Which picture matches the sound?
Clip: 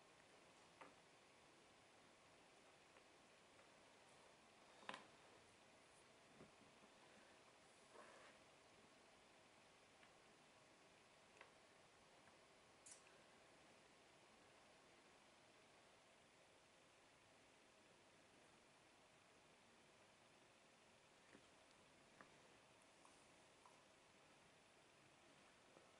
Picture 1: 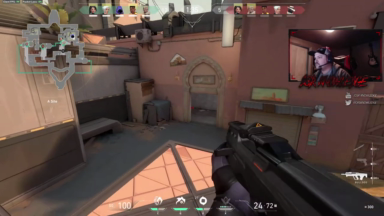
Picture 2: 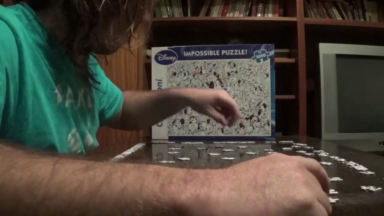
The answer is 2